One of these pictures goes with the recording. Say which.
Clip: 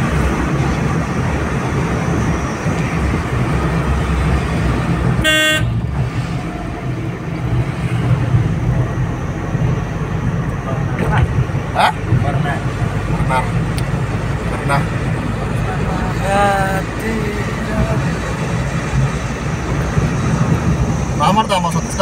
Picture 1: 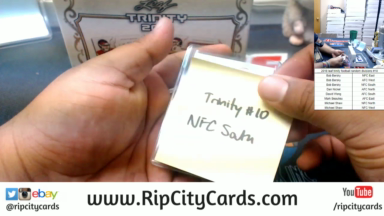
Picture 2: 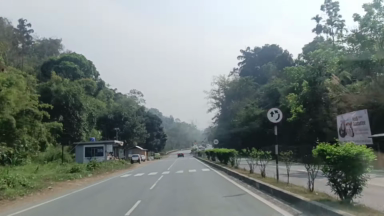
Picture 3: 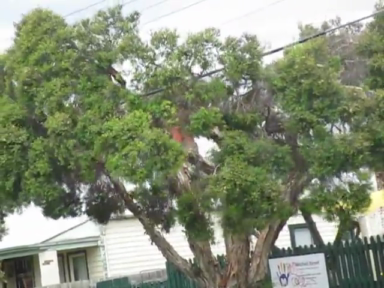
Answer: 2